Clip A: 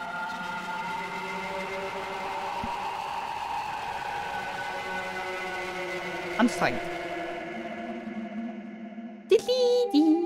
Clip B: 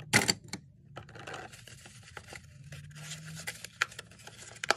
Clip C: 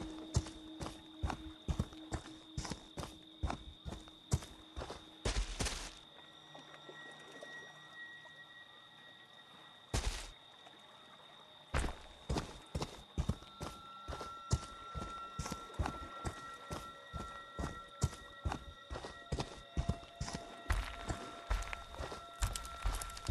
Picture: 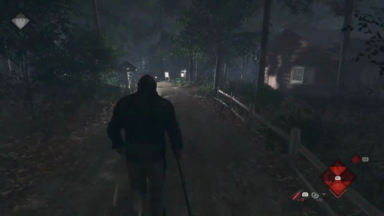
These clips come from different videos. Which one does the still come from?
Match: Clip C